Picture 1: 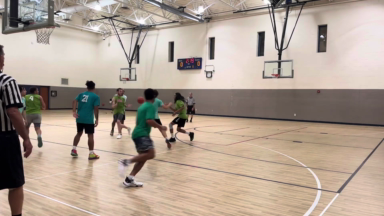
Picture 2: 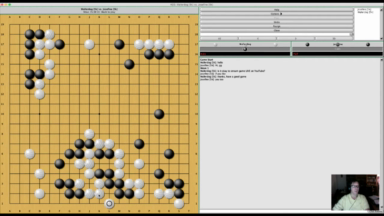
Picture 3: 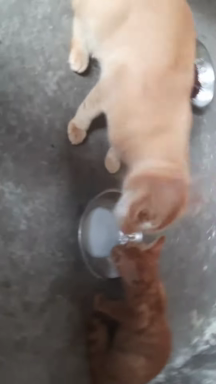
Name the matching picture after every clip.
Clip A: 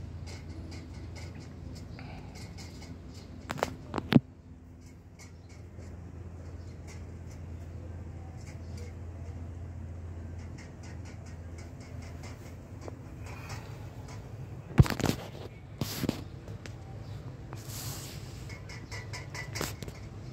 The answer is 3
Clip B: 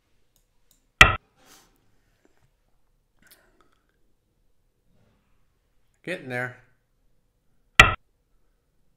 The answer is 2